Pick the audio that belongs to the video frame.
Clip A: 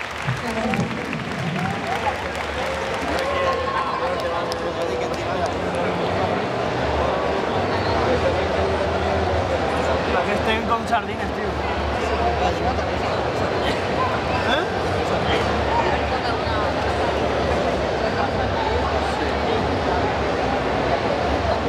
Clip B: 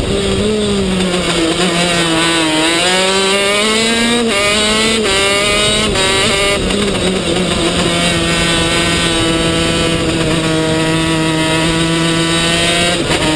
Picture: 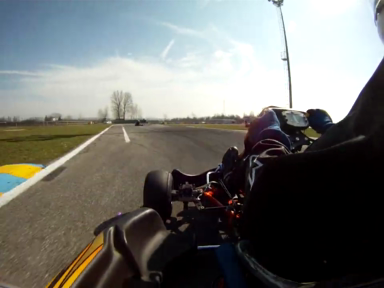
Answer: B